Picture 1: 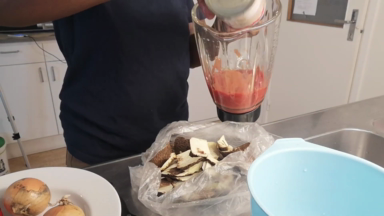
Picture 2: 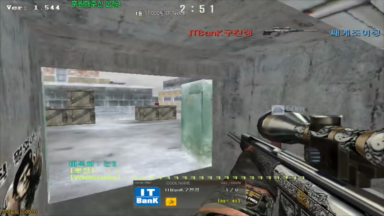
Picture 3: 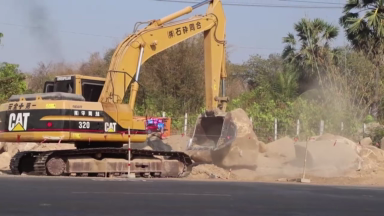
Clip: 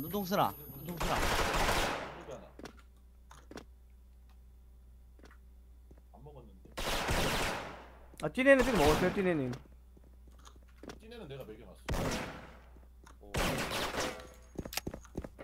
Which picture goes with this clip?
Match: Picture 2